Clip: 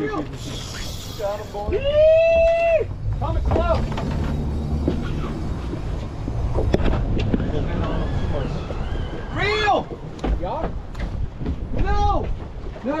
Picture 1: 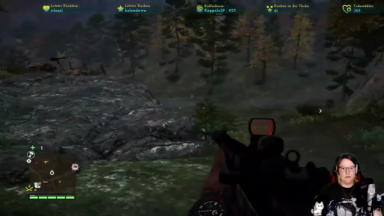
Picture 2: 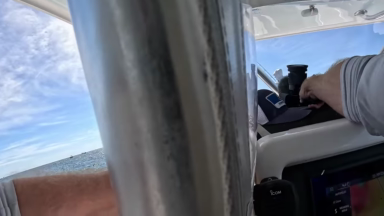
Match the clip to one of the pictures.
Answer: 2